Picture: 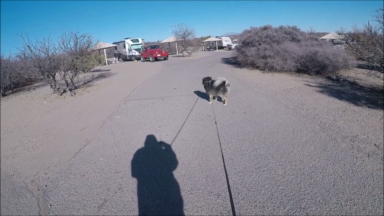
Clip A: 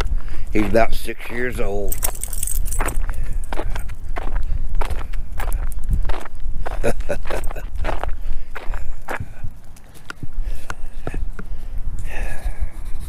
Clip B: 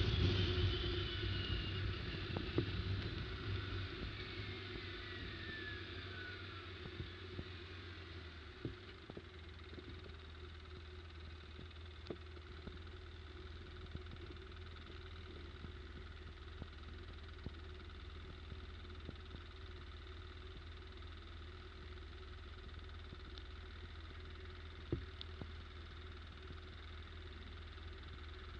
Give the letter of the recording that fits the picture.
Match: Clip A